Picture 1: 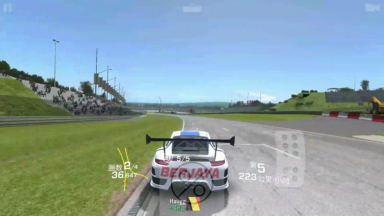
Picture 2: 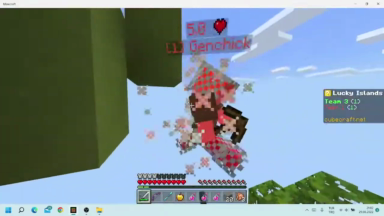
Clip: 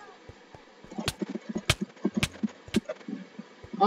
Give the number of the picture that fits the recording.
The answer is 2